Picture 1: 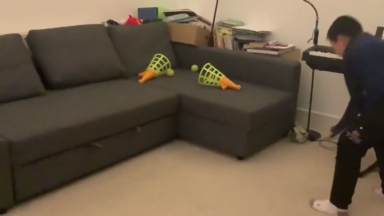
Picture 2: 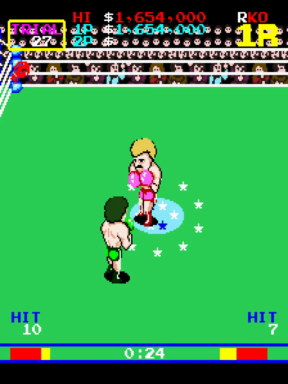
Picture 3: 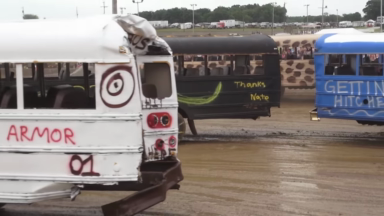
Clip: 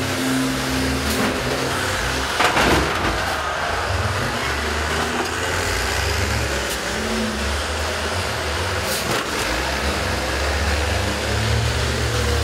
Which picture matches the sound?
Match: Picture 3